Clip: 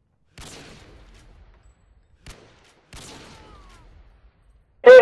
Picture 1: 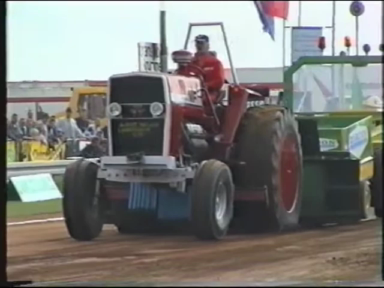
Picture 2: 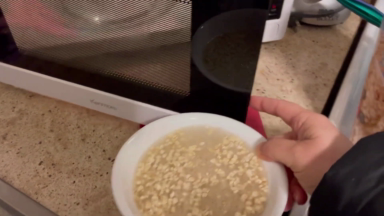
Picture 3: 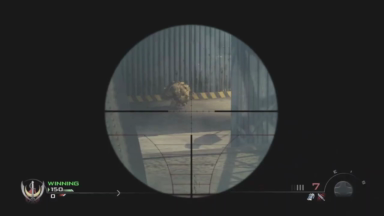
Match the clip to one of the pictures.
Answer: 3